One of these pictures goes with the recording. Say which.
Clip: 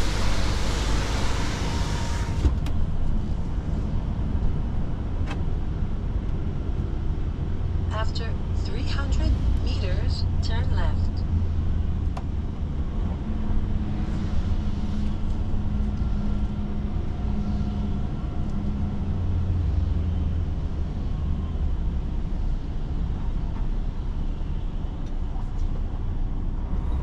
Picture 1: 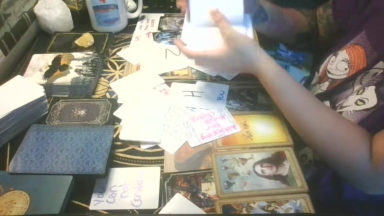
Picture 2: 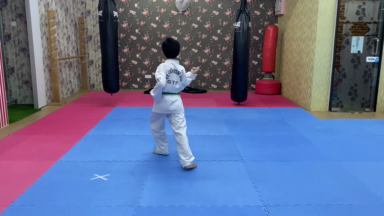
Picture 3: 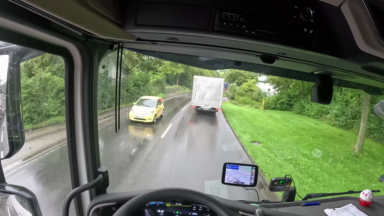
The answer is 3